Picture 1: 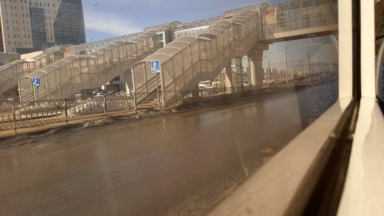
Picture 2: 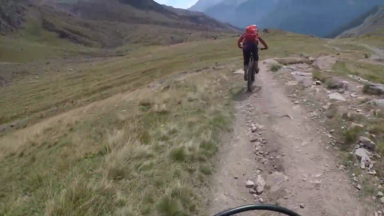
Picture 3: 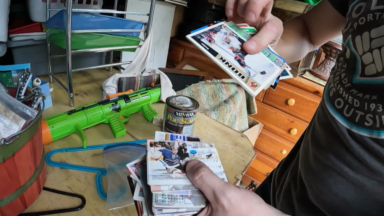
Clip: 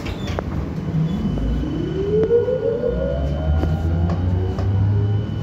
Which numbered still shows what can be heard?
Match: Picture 1